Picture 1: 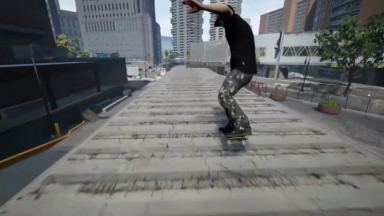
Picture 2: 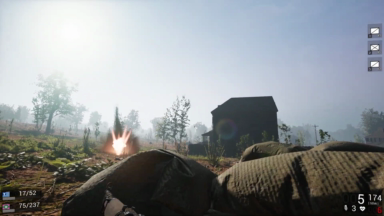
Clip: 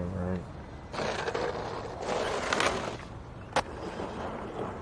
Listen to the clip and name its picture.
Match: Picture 1